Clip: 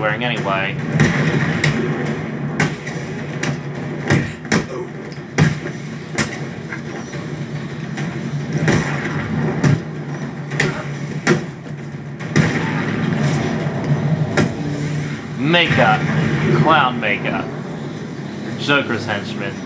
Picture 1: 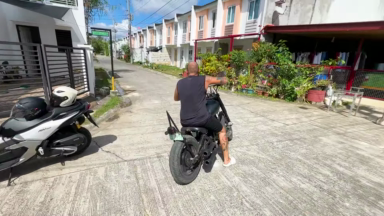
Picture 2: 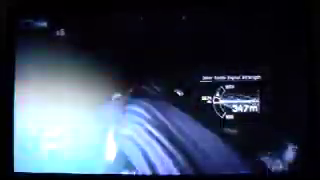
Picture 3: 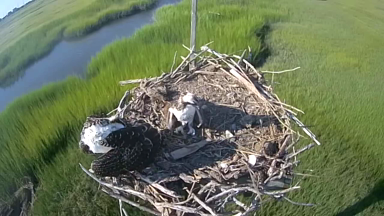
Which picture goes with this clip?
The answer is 2